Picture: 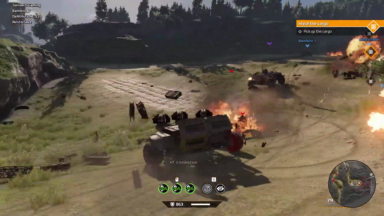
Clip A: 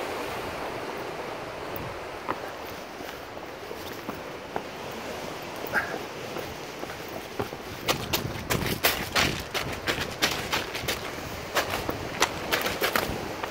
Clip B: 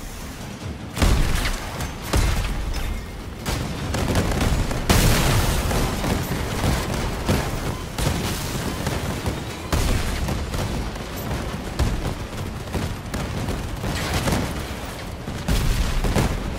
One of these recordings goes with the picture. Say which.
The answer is B